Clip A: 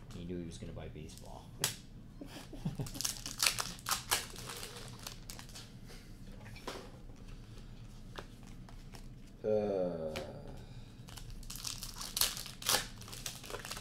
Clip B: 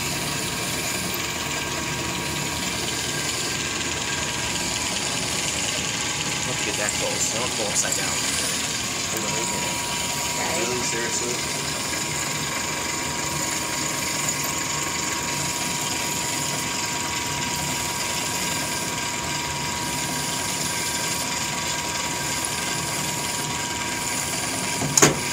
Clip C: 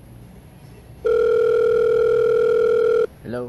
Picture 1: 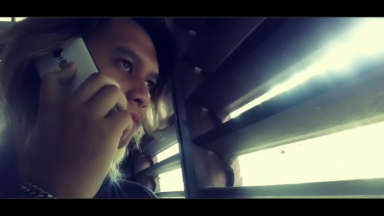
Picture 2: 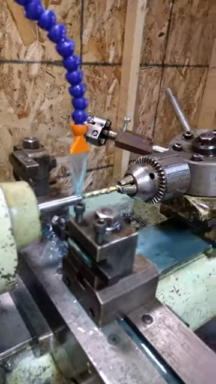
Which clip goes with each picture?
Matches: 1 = C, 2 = B